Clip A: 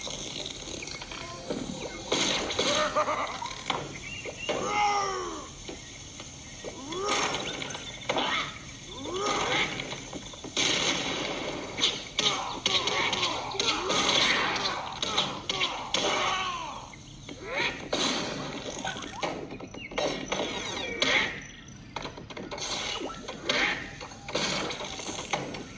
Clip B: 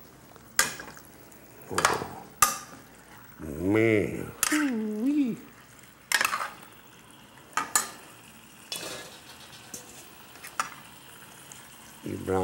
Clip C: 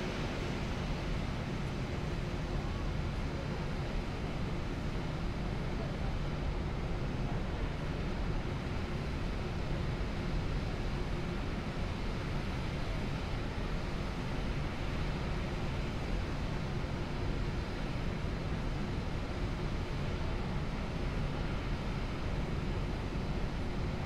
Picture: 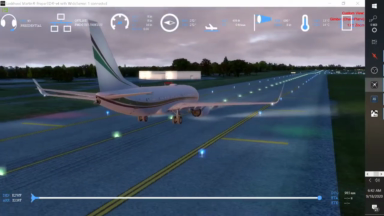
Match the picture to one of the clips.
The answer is C